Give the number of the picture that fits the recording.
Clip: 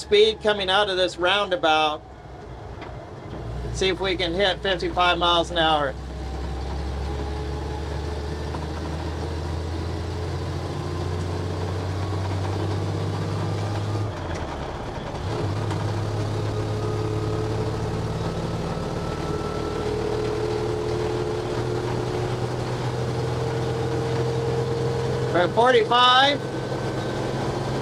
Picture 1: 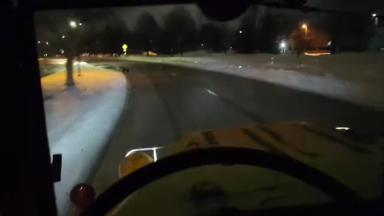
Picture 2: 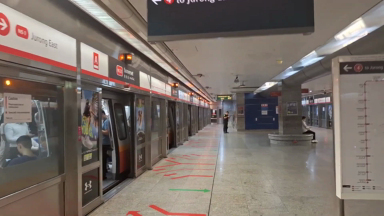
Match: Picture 1